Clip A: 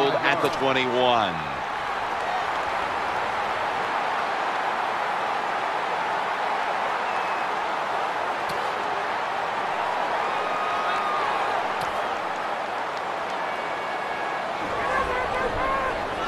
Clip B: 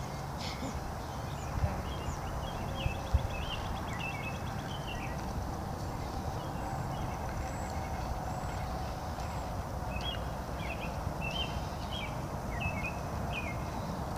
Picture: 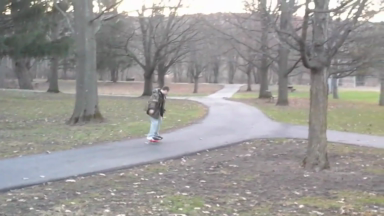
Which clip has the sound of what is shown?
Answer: B